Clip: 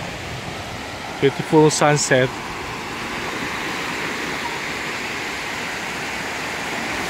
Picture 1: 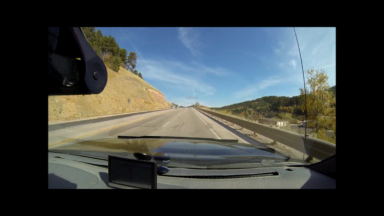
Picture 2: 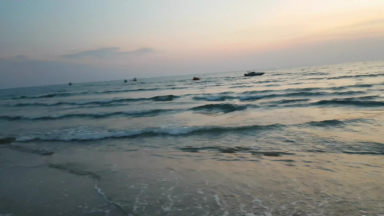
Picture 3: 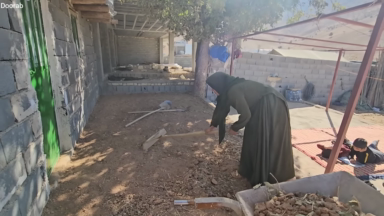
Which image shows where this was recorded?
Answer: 2